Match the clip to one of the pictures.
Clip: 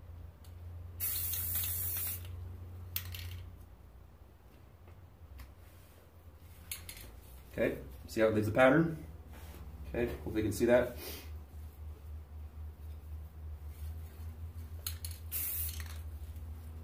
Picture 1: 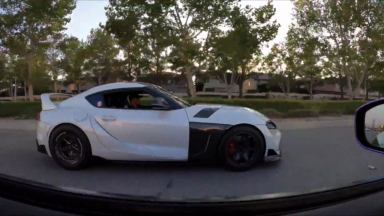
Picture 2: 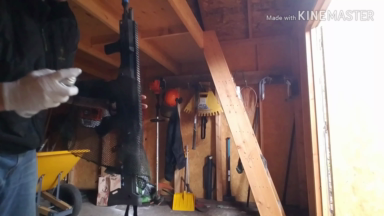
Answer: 2